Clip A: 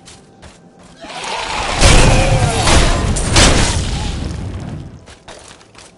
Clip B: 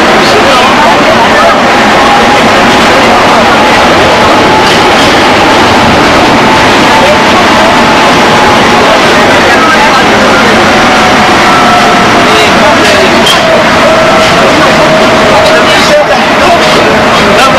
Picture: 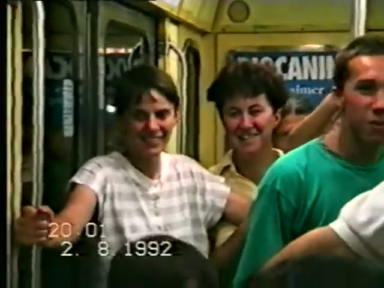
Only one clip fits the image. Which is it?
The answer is B